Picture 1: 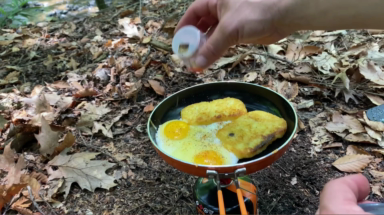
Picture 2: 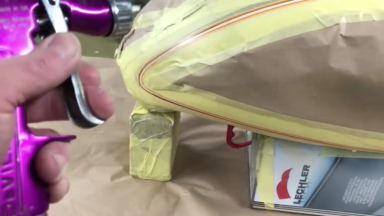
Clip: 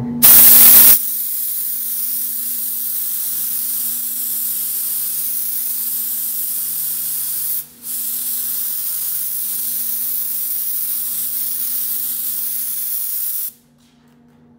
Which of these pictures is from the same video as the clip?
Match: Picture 2